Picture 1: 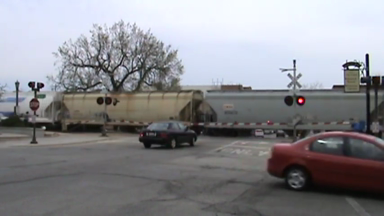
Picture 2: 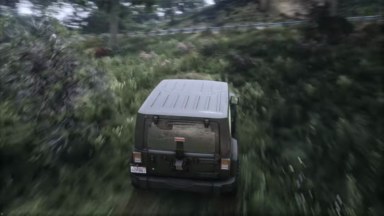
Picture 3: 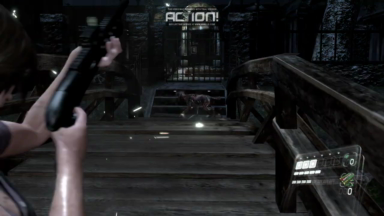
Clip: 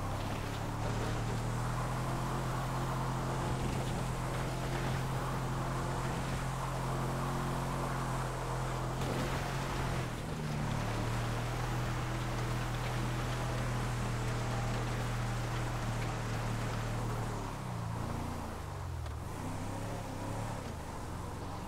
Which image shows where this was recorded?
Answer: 2